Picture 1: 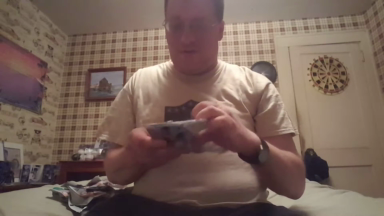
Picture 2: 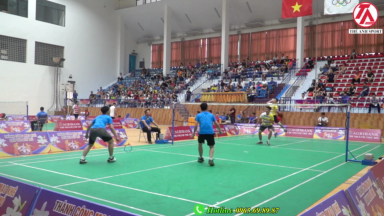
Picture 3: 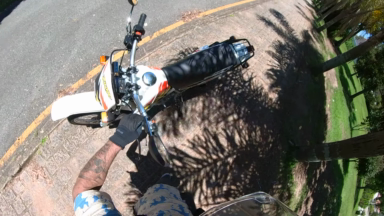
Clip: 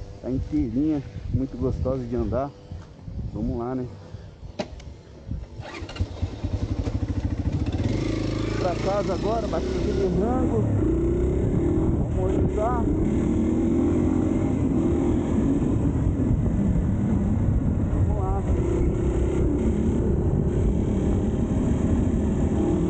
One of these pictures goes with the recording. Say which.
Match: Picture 3